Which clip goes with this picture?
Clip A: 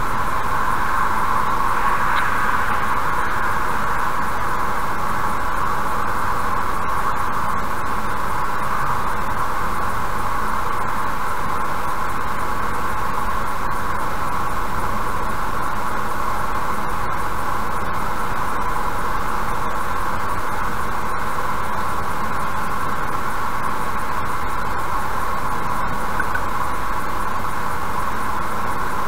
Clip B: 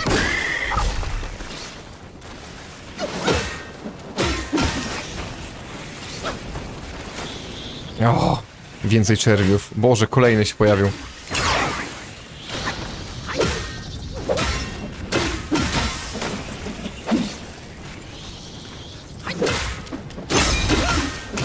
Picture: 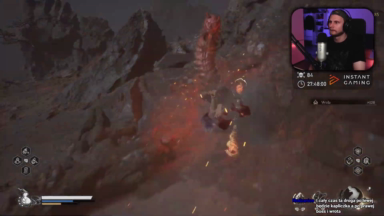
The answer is B